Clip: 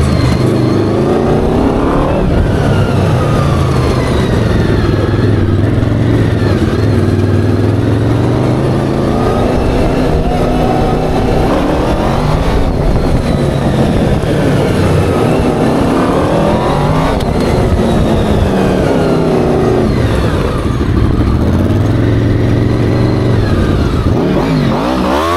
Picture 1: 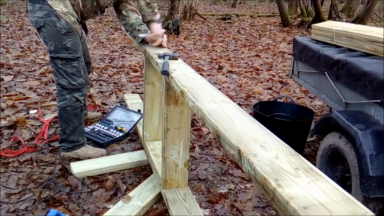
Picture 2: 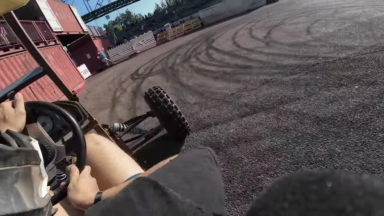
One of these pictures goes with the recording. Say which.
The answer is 2